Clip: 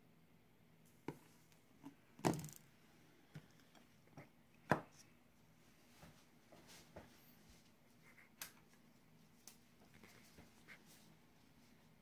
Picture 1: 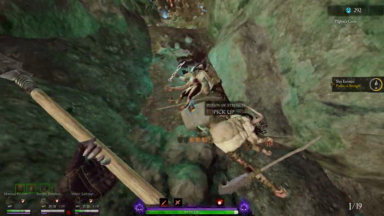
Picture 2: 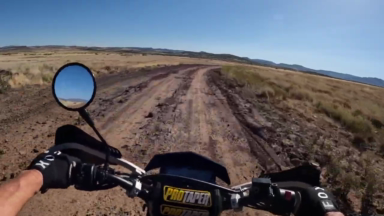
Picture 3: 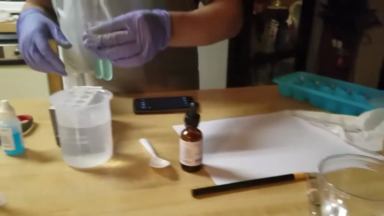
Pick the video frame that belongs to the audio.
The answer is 3